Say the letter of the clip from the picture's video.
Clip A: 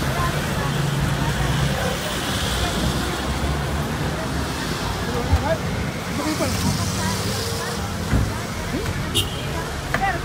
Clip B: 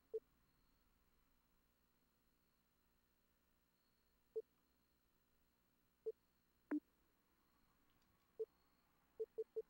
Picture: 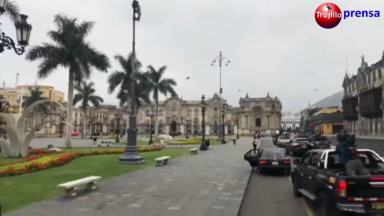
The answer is A